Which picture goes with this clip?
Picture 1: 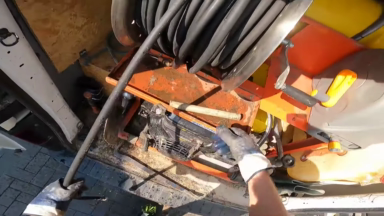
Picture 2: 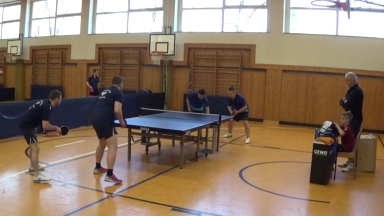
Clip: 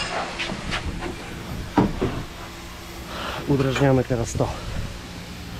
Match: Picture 1